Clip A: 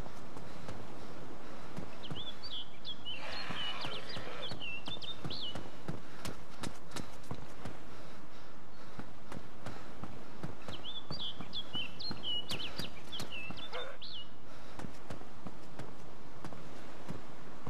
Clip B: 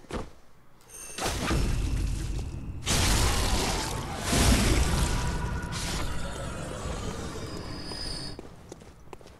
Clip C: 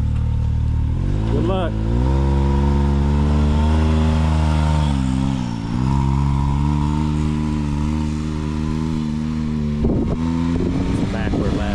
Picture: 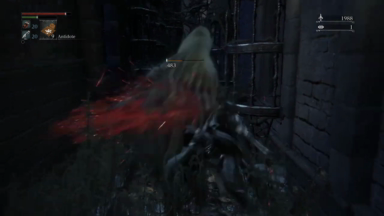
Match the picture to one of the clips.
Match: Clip B